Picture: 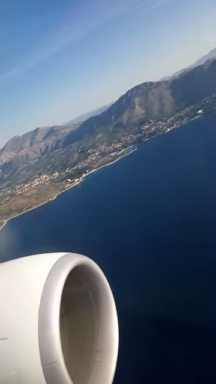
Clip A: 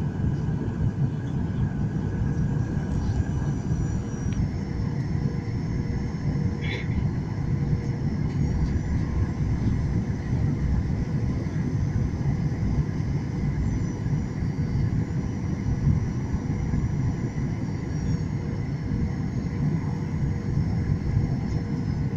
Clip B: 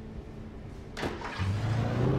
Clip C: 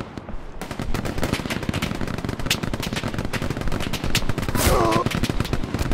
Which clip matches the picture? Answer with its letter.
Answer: A